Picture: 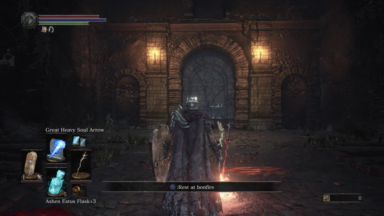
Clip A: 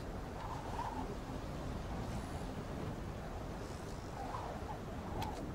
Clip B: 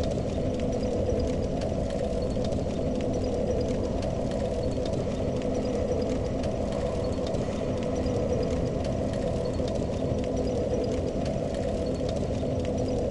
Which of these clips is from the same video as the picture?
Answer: B